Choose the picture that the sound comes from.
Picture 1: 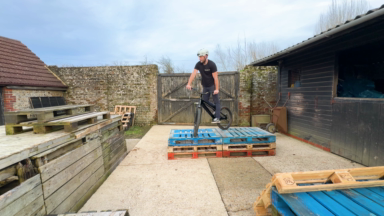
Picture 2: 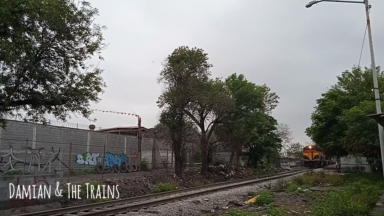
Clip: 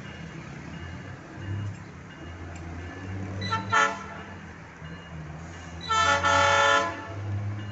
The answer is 2